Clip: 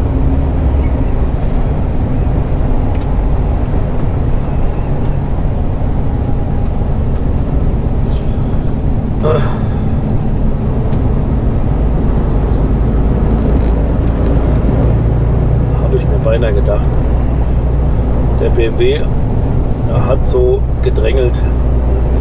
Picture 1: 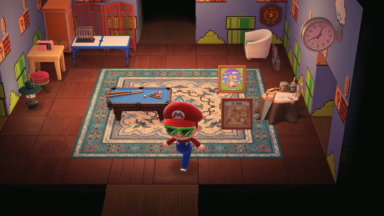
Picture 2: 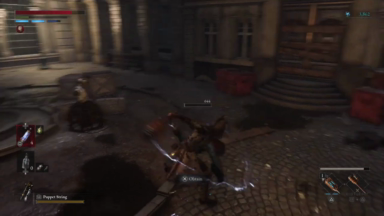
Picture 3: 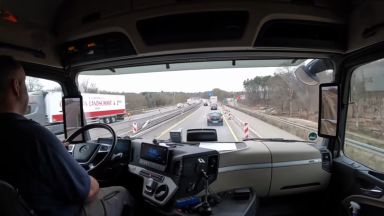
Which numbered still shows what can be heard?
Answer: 3